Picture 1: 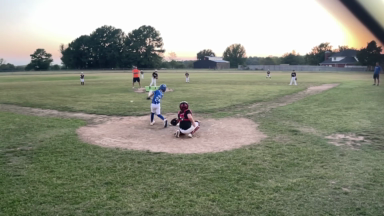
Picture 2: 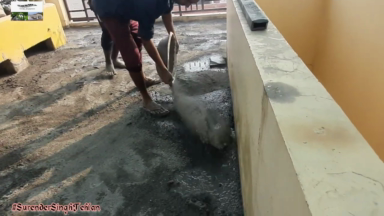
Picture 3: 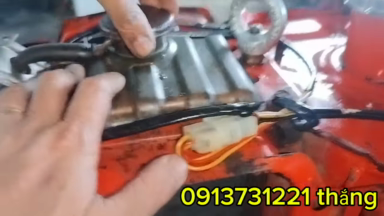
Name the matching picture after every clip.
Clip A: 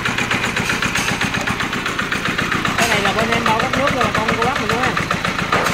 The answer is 3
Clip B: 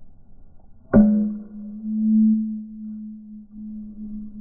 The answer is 1